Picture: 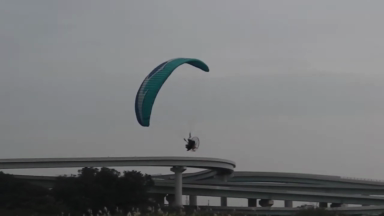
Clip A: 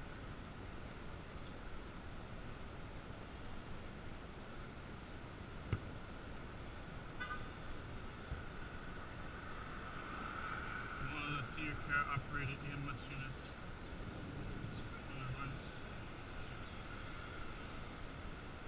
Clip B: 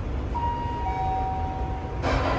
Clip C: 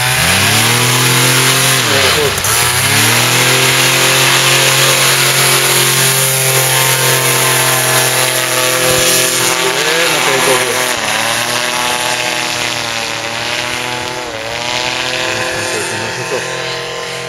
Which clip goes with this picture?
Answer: C